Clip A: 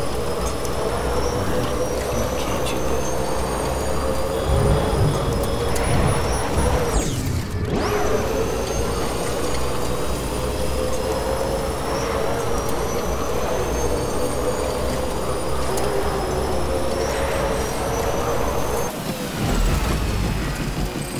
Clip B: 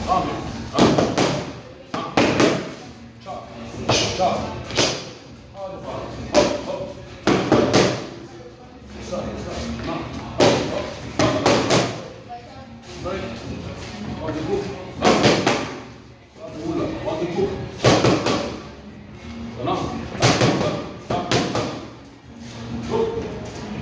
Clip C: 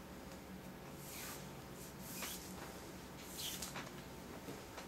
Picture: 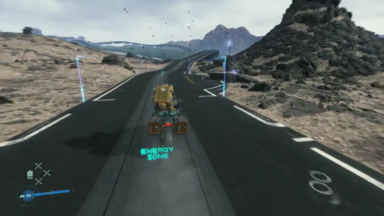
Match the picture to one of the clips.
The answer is A